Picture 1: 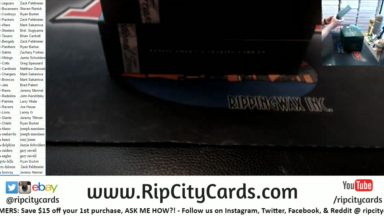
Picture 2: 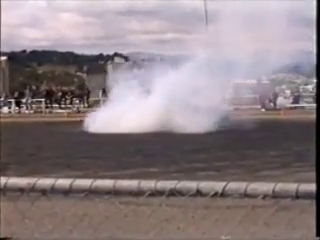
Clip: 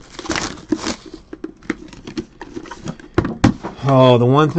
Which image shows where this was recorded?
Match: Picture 1